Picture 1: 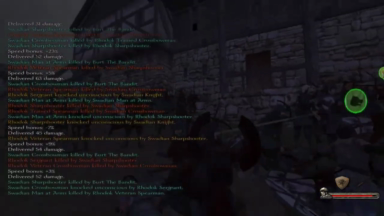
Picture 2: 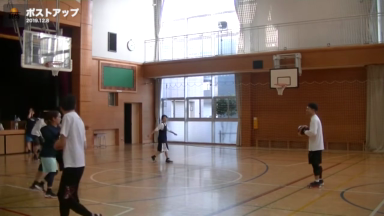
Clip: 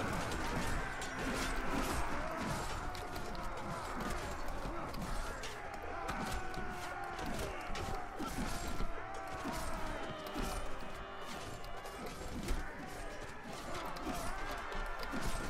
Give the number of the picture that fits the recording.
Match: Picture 1